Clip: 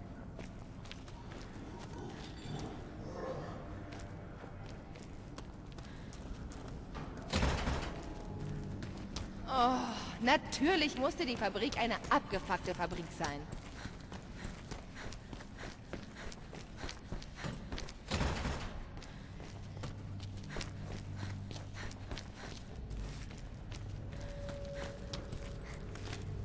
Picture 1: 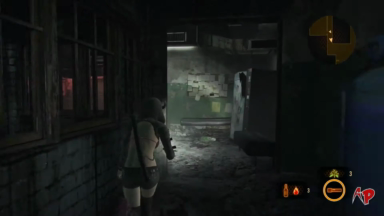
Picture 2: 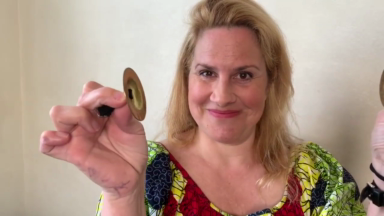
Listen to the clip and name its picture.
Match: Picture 1